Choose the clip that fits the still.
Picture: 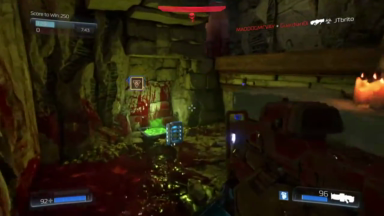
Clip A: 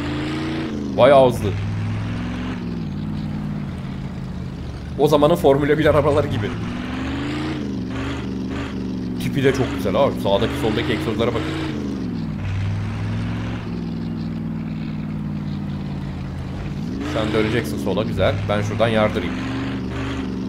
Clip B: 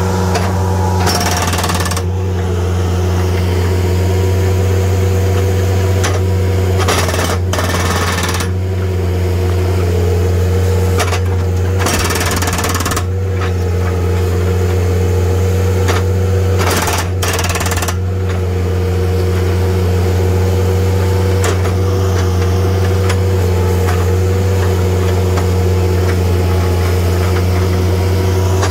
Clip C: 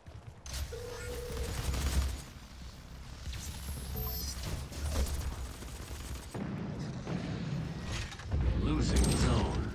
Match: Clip C